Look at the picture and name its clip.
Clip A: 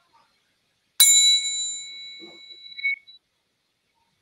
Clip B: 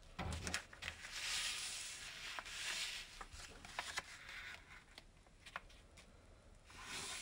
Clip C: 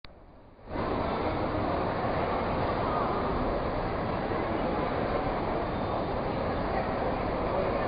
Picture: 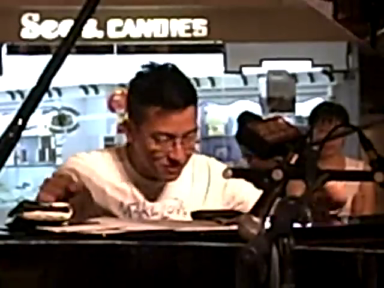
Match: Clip C